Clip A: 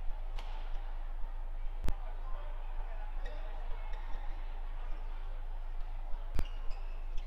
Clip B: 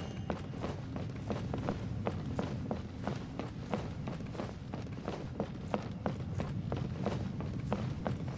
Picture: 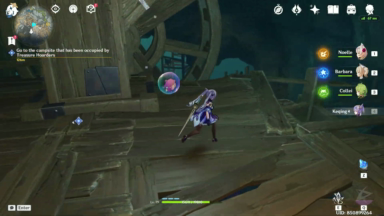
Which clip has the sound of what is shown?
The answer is B